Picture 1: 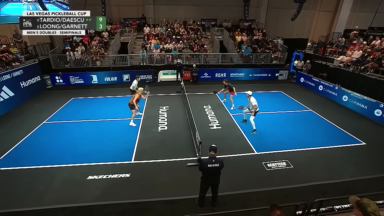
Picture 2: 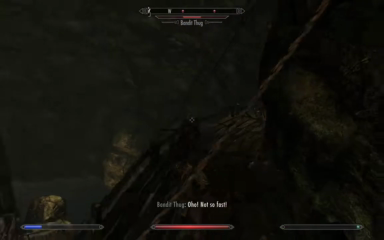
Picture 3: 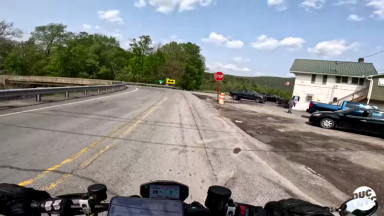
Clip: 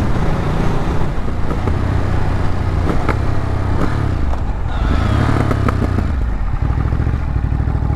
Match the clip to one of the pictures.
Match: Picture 3